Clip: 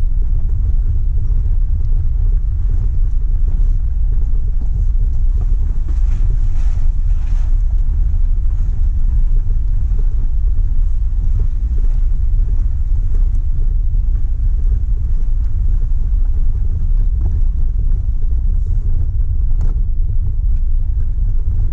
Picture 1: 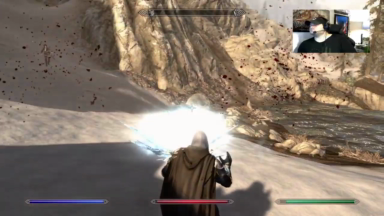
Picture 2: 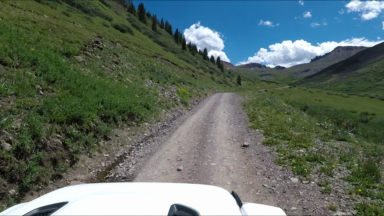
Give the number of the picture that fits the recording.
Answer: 2